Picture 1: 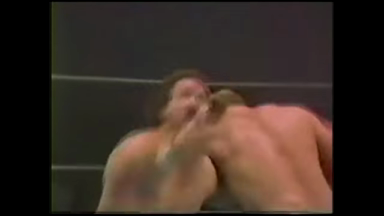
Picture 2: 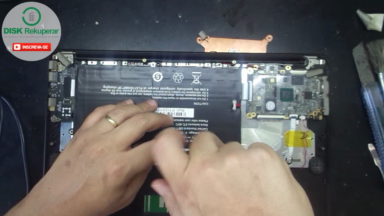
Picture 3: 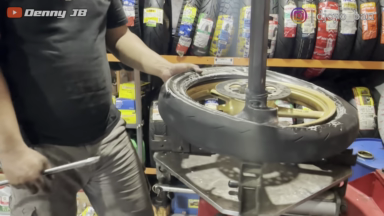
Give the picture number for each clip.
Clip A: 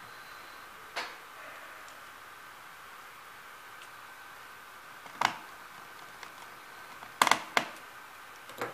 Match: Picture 2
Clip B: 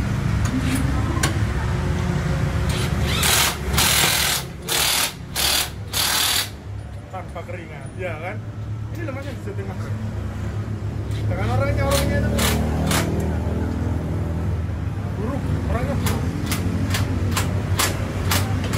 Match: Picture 3